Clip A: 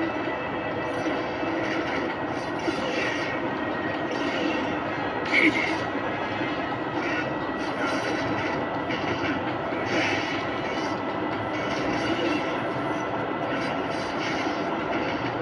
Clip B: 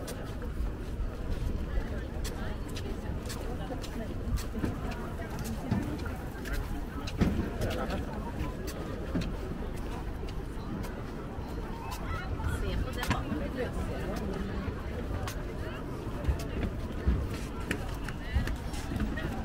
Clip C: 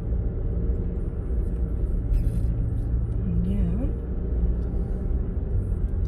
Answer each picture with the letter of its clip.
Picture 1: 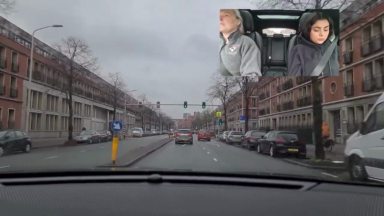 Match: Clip C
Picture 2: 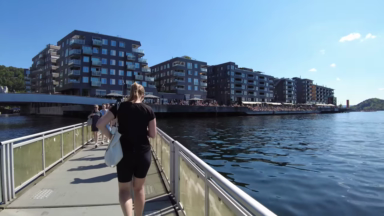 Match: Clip B